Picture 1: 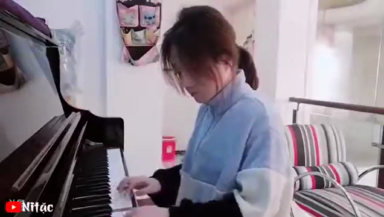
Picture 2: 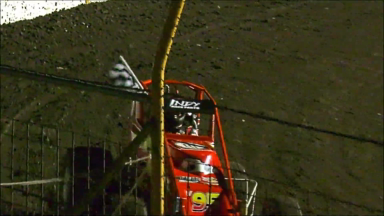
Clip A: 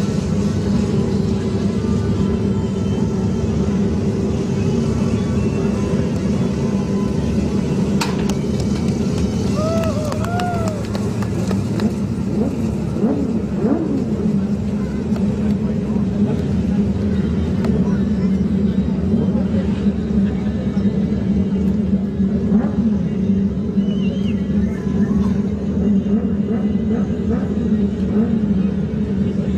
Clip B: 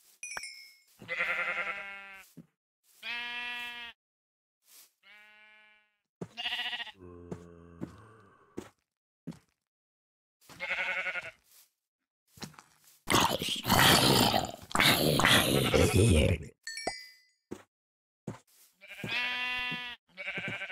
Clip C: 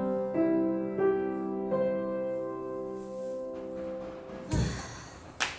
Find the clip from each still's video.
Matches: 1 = C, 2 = A